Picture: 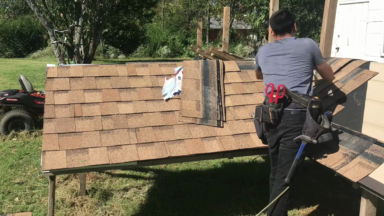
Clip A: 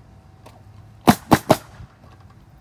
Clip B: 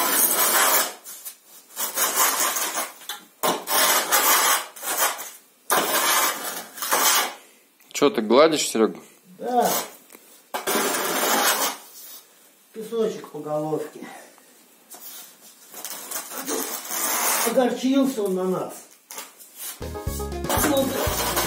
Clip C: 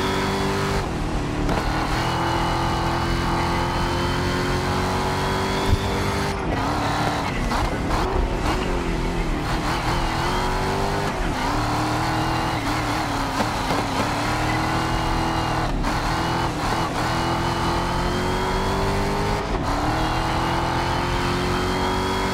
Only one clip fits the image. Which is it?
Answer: A